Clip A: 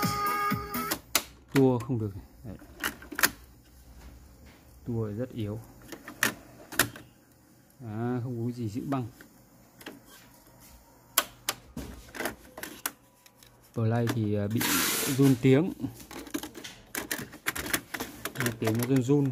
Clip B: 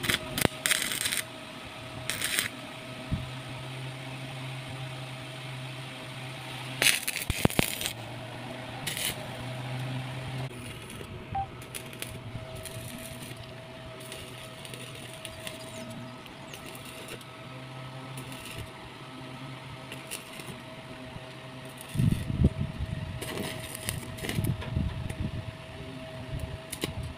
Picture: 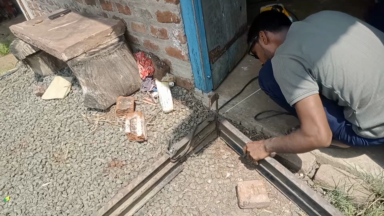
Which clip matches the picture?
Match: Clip B